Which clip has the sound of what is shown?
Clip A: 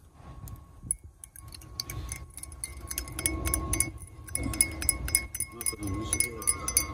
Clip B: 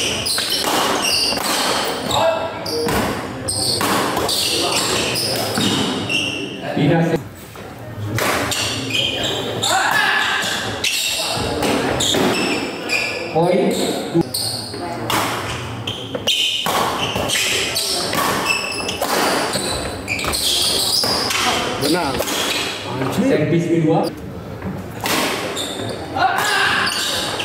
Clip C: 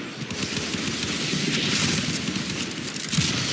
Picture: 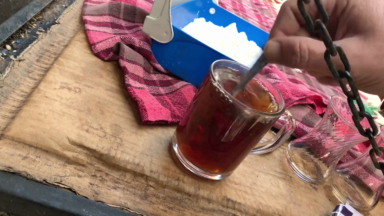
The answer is A